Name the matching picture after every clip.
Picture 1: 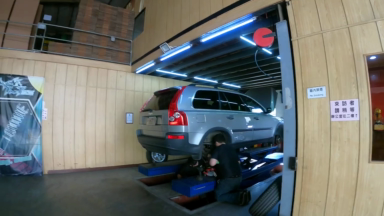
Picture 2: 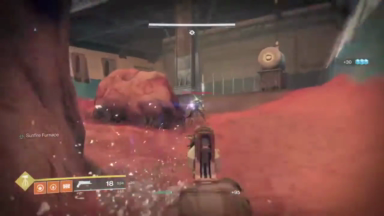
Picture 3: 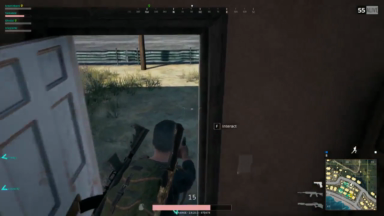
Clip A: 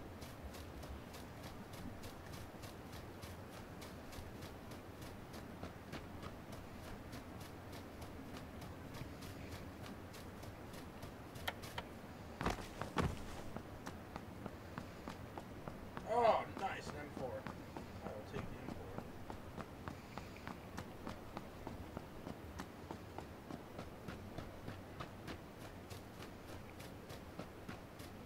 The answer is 3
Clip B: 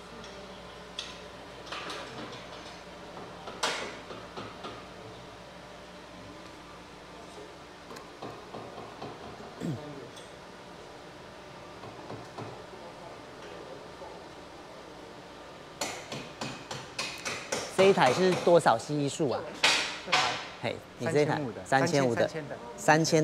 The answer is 1